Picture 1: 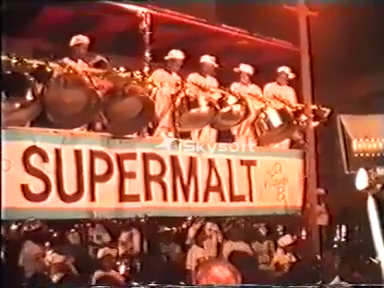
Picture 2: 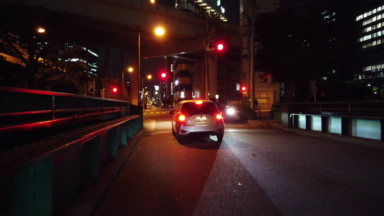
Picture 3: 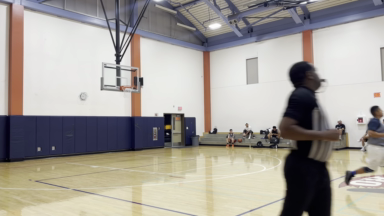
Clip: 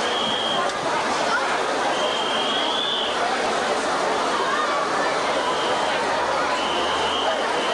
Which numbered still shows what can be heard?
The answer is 1